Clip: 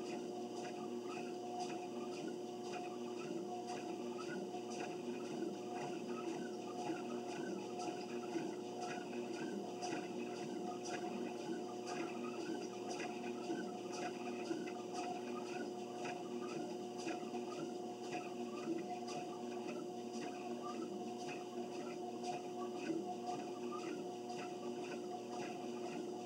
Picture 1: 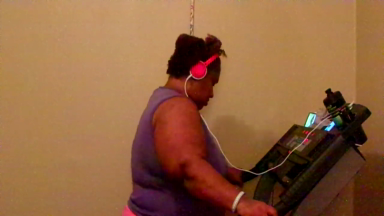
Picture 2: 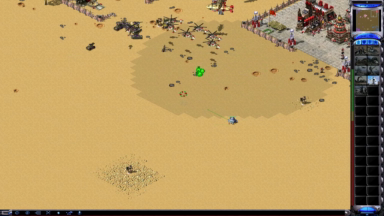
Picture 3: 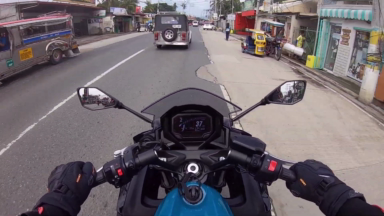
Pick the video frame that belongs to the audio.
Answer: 1